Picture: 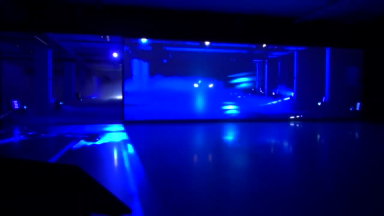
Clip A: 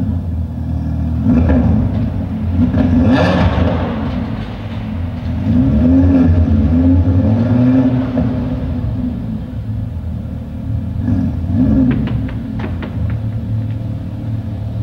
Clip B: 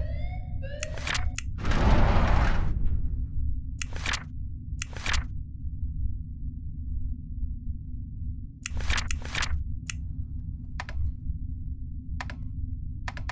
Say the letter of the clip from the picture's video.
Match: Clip A